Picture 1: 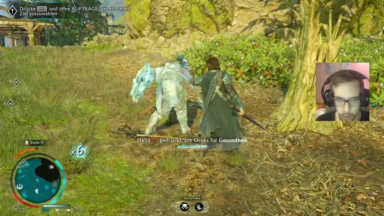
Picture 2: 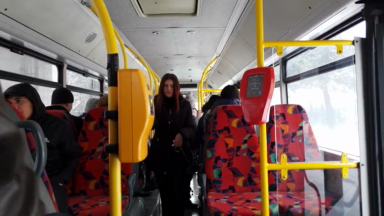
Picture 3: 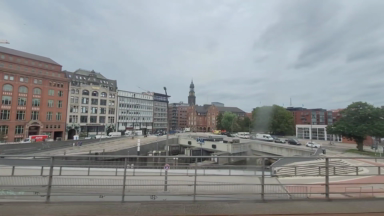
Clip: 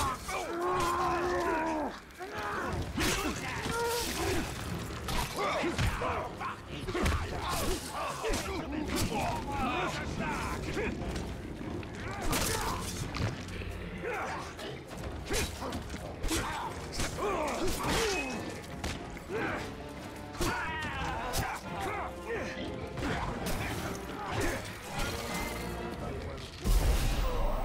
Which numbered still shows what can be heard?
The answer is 1